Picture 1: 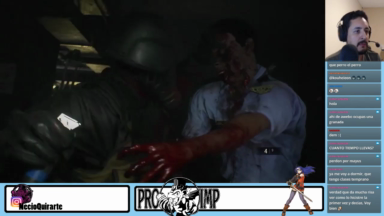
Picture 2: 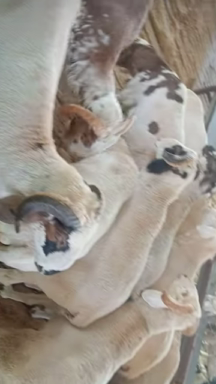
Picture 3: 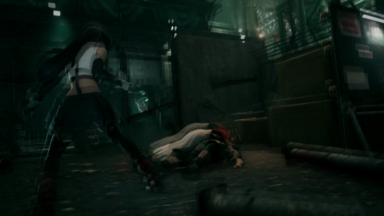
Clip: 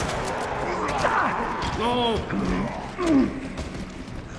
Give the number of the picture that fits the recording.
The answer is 1